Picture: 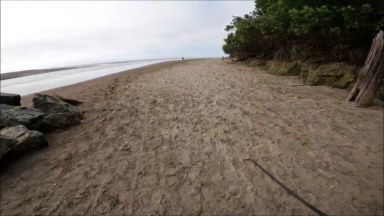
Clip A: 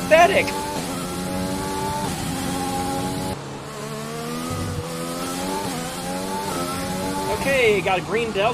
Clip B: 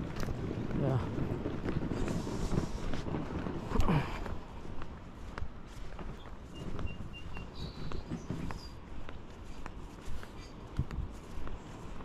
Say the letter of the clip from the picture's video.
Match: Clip B